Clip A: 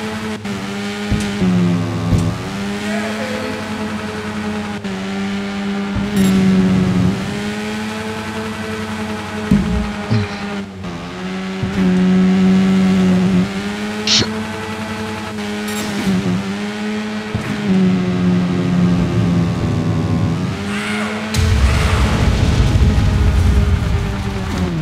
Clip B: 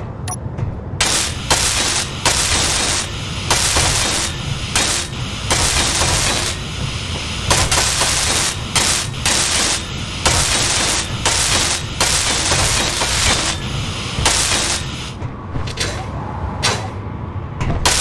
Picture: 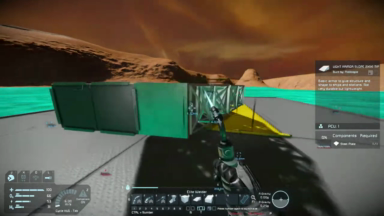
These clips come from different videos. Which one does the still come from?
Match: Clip B